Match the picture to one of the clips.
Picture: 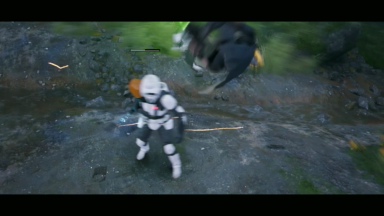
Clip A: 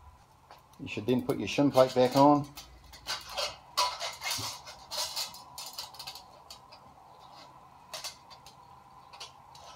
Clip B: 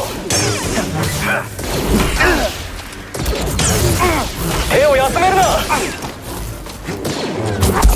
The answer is B